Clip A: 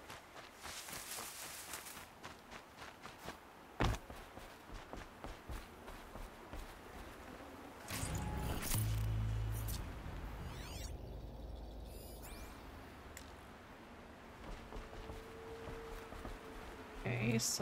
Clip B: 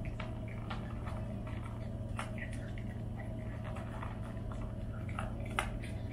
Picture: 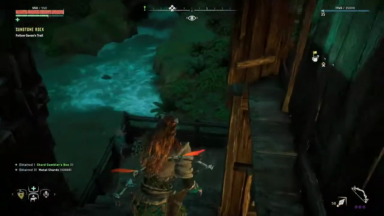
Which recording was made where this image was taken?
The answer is A